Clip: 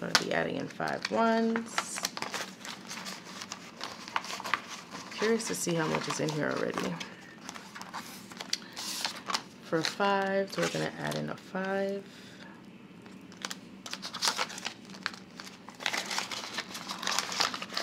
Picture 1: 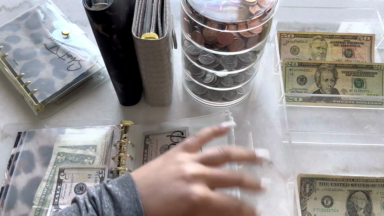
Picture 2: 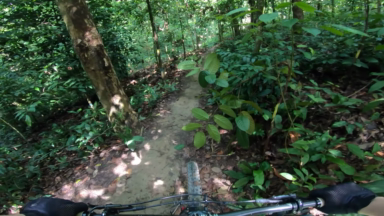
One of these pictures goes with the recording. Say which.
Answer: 1